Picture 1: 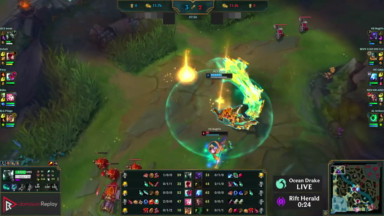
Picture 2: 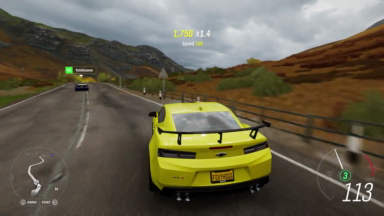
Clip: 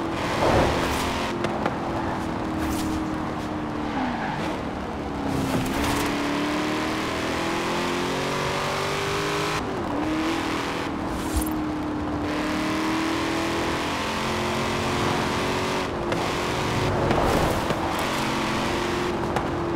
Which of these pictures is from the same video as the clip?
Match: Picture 2